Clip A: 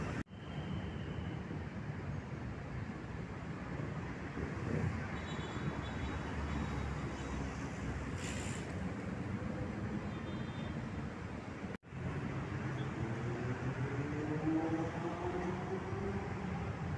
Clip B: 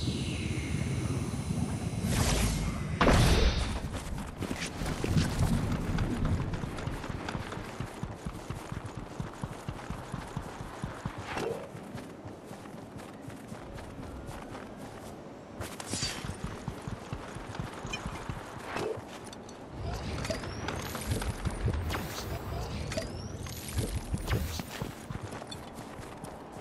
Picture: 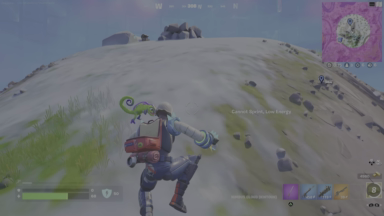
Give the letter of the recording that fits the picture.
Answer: B